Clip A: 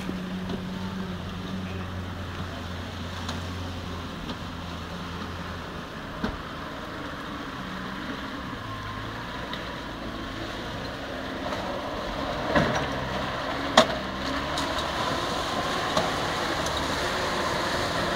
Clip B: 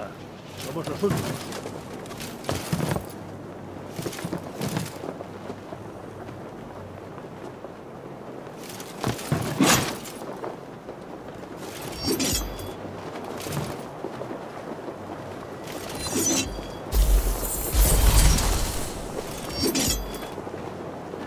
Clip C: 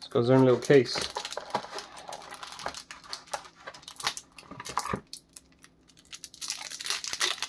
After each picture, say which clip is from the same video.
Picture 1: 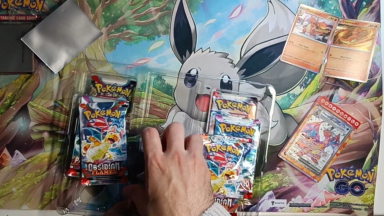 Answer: C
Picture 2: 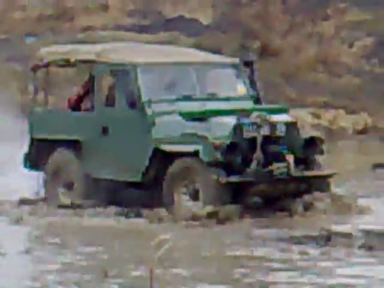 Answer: A